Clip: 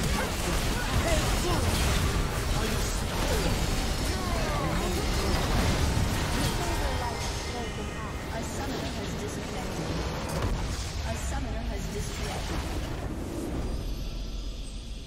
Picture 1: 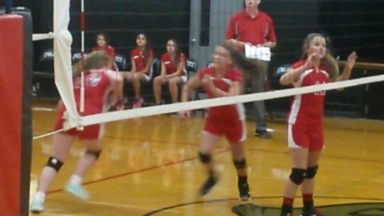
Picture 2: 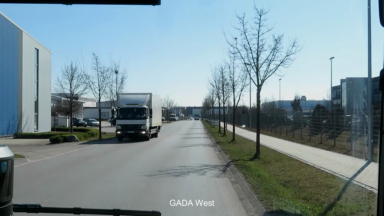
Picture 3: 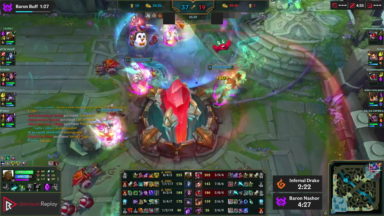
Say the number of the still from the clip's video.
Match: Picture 3